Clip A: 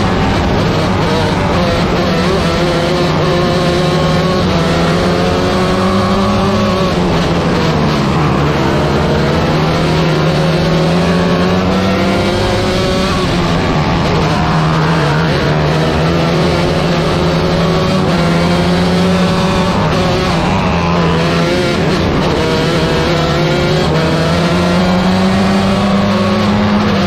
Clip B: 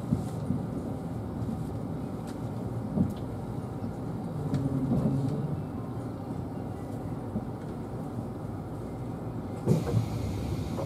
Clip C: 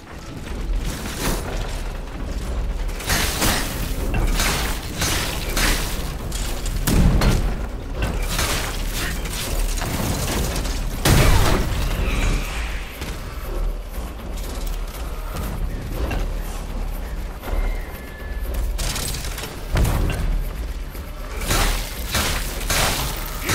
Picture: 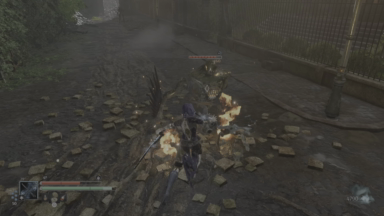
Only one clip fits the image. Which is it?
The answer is C